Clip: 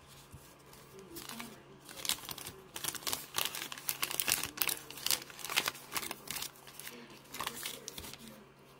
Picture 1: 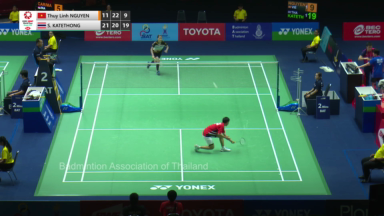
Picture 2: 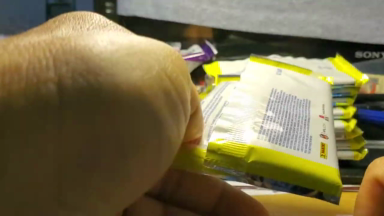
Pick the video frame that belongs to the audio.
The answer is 2